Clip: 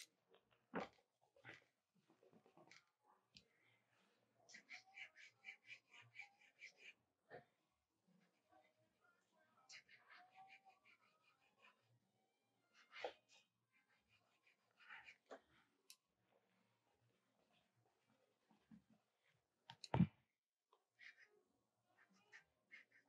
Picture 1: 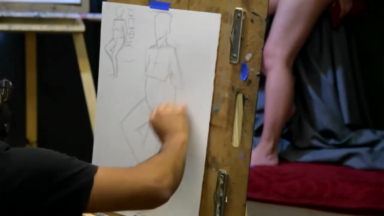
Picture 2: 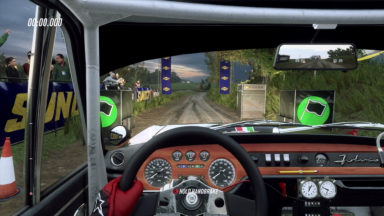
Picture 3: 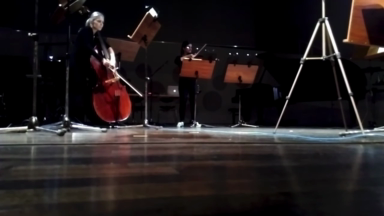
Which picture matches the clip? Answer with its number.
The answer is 1